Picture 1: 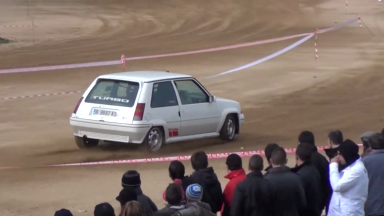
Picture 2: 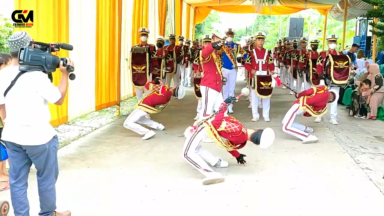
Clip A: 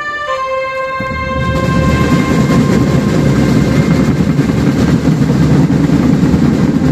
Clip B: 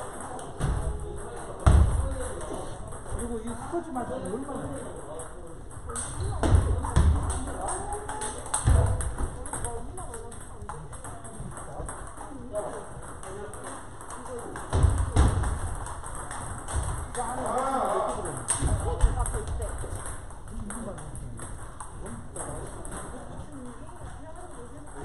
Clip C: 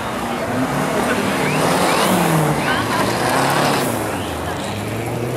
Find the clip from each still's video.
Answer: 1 C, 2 A